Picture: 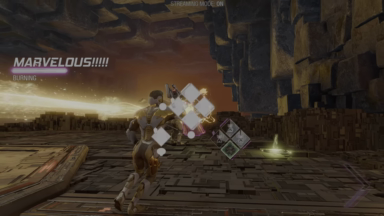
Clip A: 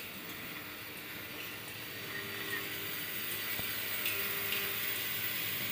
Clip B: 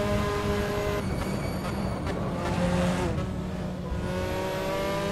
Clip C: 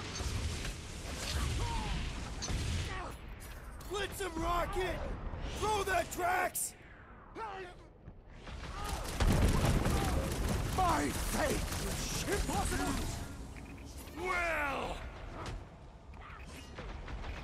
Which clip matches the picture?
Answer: C